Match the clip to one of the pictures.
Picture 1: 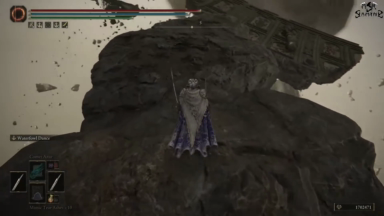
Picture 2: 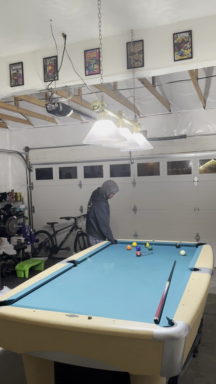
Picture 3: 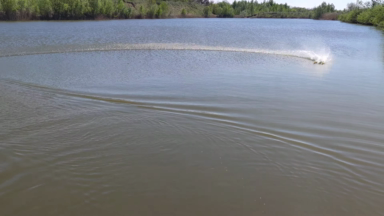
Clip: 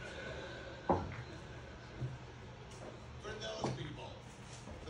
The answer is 2